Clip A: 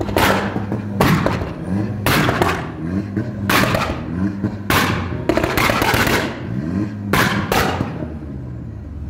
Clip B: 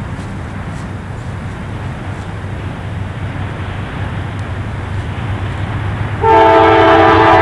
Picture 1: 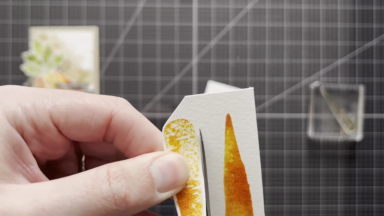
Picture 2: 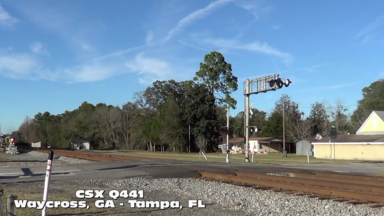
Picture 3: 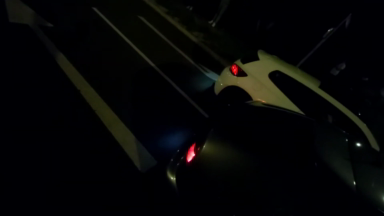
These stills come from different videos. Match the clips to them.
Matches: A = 3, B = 2